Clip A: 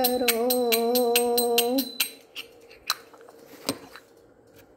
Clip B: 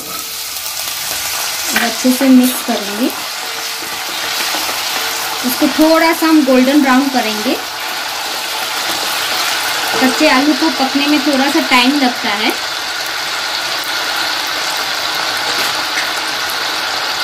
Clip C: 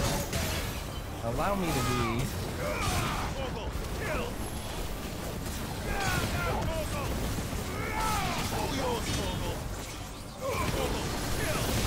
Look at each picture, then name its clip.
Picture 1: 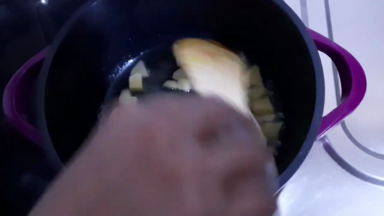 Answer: B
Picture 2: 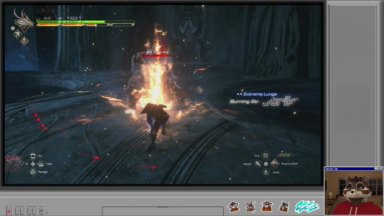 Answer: C